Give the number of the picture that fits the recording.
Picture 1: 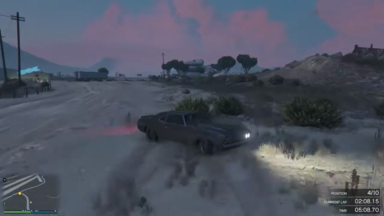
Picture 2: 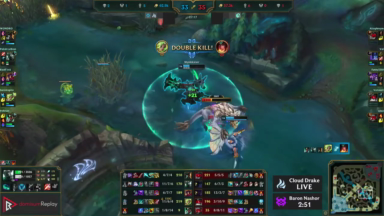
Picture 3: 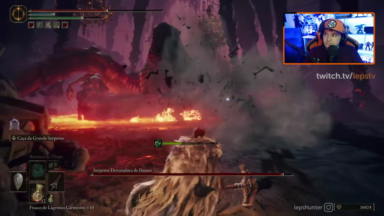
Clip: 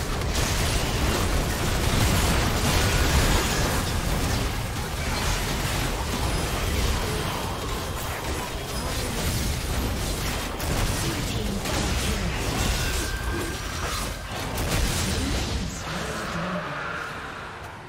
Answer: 2